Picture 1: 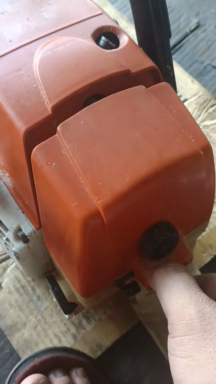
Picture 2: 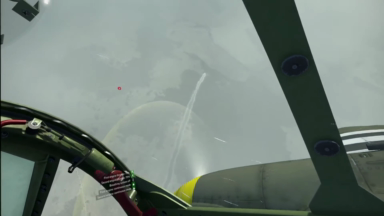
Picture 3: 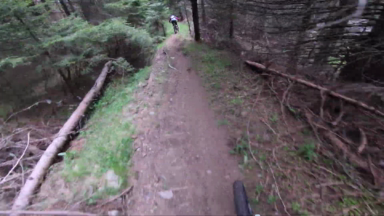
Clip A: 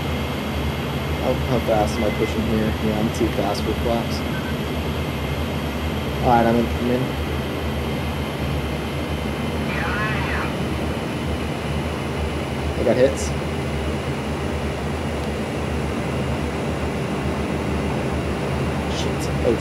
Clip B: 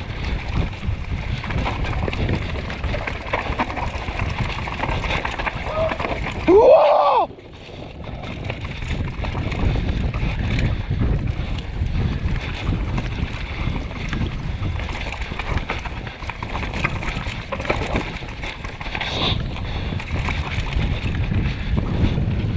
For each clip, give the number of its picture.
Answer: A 2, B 3